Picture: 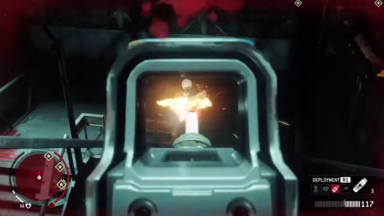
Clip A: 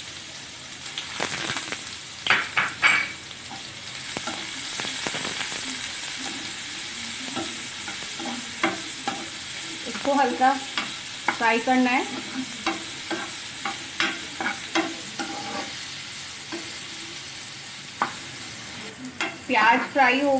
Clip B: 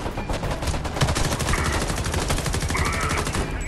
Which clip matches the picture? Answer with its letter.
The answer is B